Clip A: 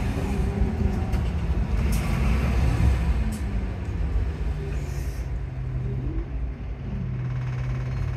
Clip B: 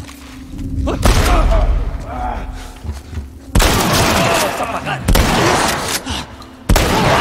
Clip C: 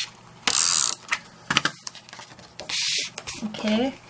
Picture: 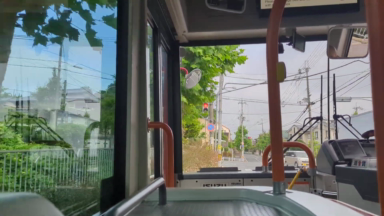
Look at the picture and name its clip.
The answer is A